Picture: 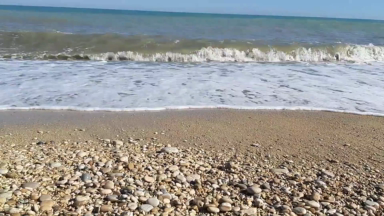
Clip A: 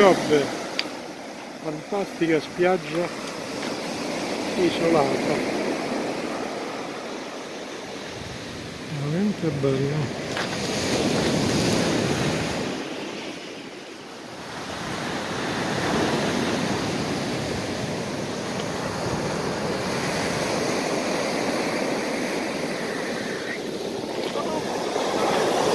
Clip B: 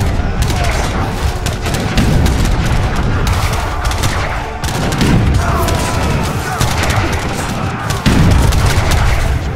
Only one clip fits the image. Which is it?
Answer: A